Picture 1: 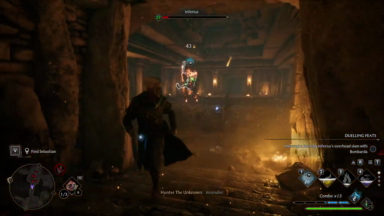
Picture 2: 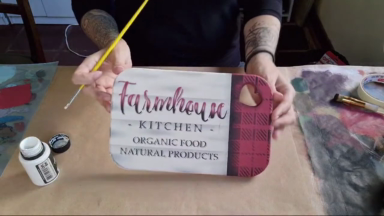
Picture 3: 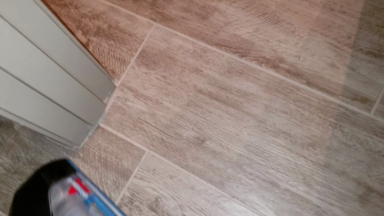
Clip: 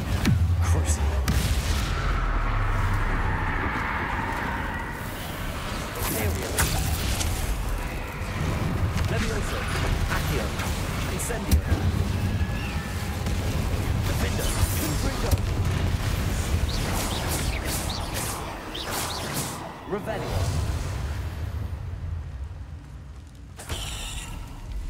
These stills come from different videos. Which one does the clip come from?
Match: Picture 1